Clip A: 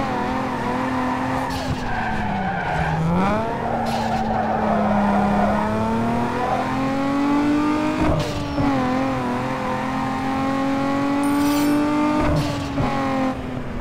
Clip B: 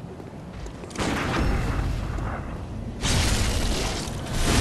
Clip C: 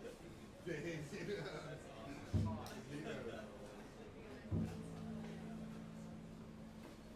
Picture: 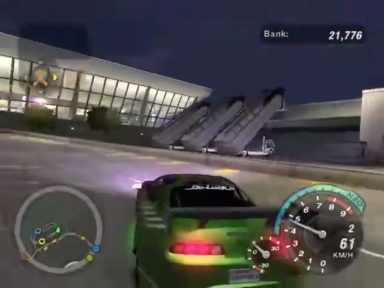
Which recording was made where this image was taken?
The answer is A